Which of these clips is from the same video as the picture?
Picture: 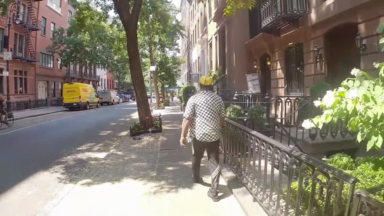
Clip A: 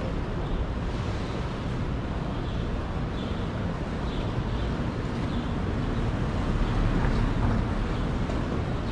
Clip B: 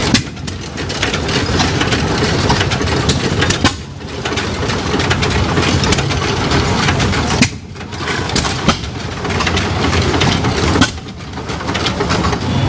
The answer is A